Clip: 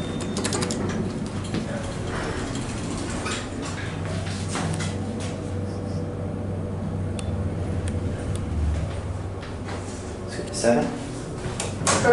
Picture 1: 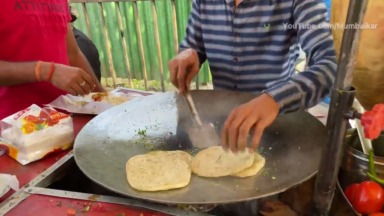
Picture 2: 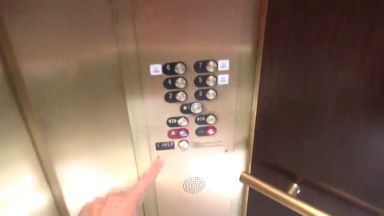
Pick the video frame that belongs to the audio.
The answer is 2